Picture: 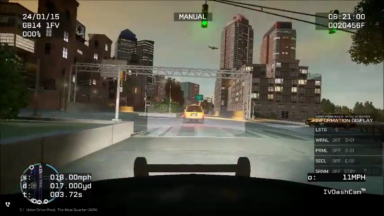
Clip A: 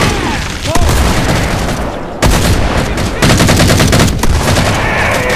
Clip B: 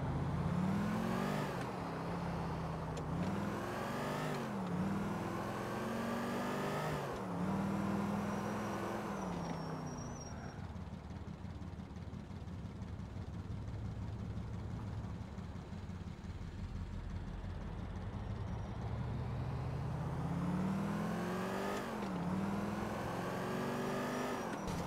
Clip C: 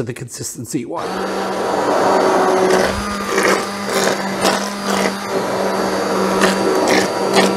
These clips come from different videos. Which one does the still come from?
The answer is B